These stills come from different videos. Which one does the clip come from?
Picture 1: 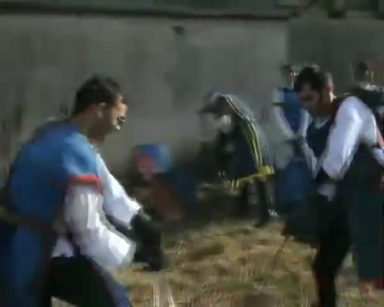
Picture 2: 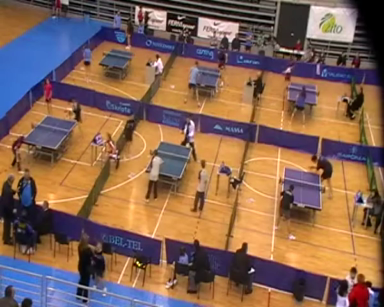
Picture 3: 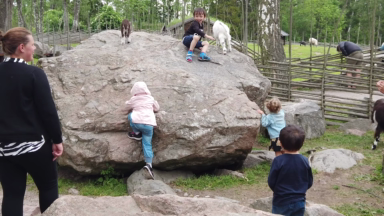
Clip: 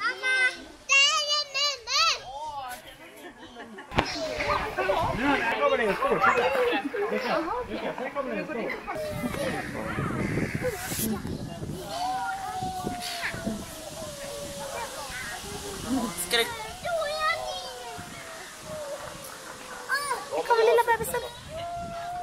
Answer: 3